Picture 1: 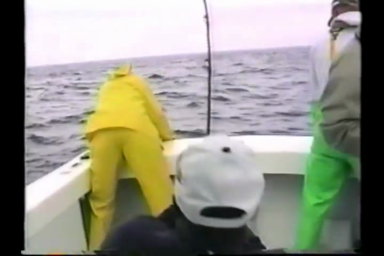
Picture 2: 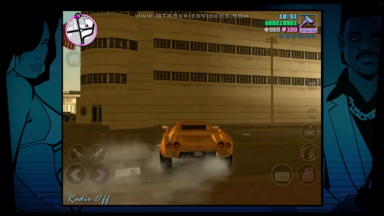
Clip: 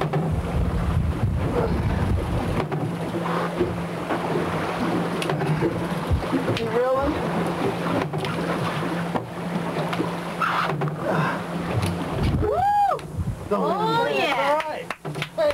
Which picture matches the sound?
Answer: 1